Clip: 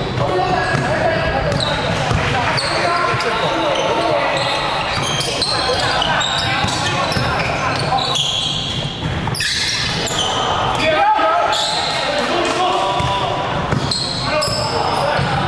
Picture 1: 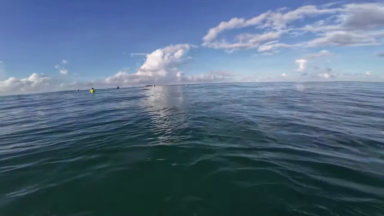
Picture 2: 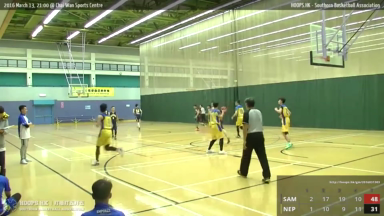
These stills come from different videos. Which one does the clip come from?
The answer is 2